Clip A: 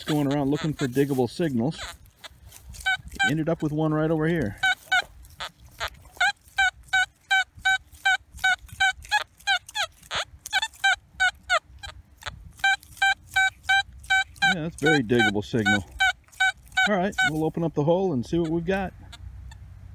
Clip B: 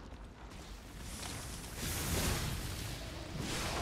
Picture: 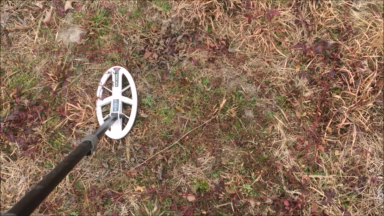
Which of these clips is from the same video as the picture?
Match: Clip A